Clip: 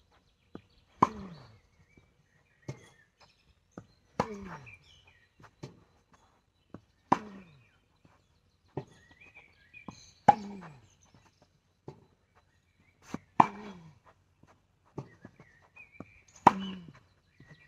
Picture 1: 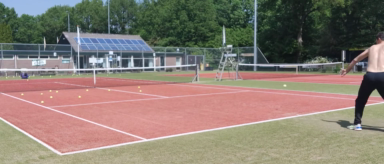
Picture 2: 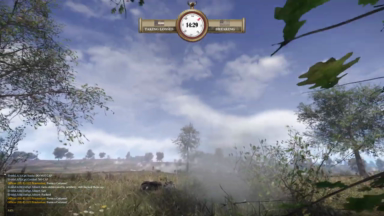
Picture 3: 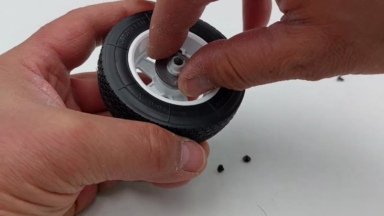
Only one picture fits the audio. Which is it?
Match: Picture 1